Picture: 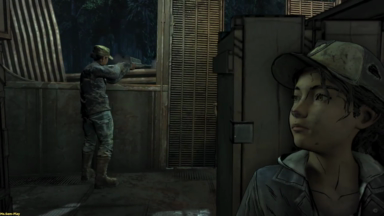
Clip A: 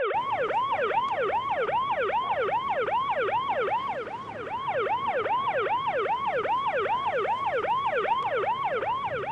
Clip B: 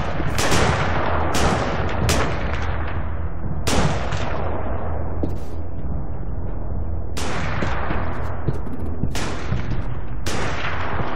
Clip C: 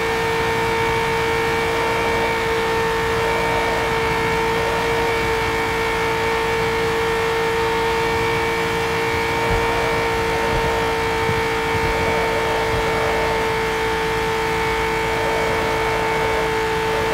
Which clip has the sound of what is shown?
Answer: B